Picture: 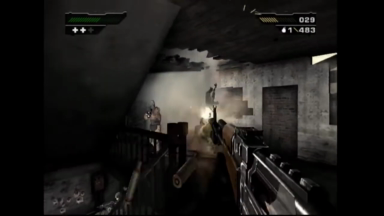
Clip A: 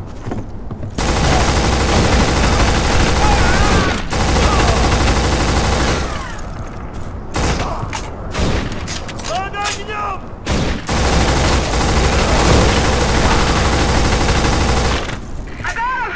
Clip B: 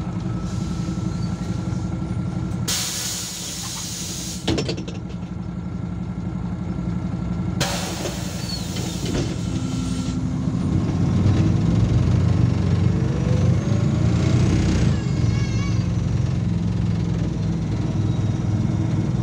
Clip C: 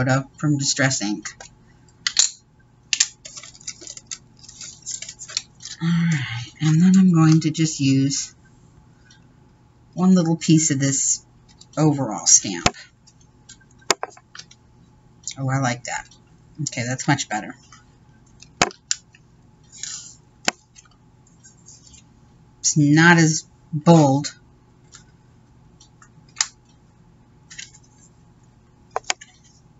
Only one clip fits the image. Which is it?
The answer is A